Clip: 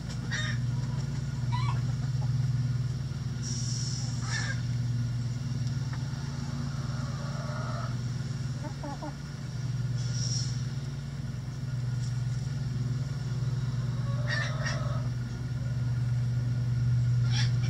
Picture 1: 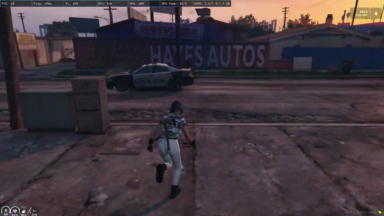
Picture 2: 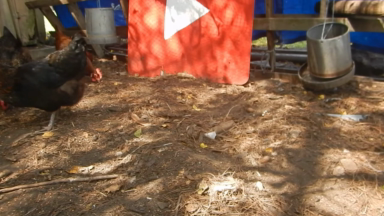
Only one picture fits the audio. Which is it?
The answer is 2